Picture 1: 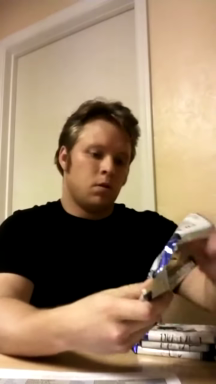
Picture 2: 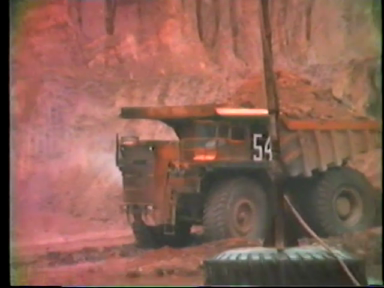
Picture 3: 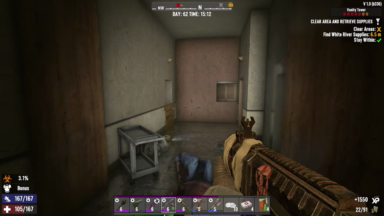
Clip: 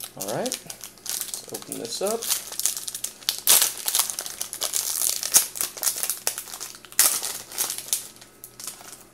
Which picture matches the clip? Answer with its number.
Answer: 1